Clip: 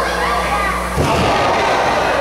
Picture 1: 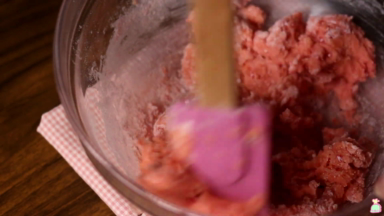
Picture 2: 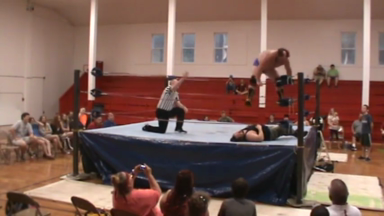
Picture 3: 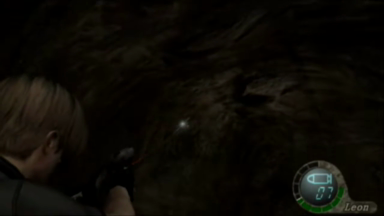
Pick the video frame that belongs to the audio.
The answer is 2